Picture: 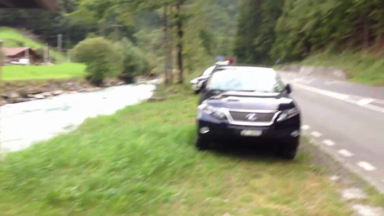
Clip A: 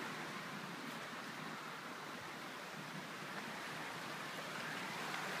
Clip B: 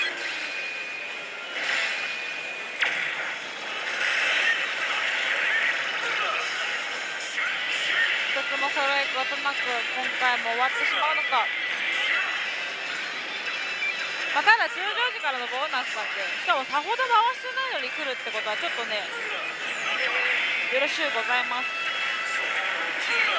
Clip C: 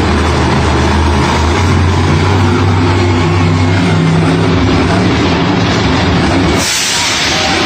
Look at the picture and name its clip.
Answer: A